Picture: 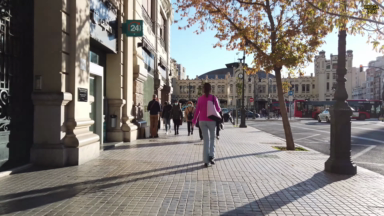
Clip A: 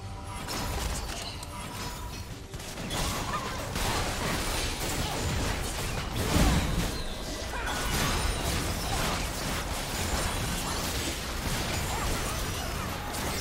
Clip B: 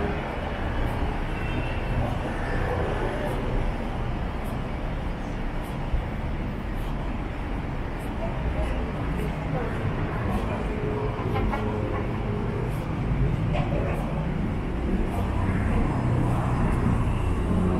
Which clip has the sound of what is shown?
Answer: B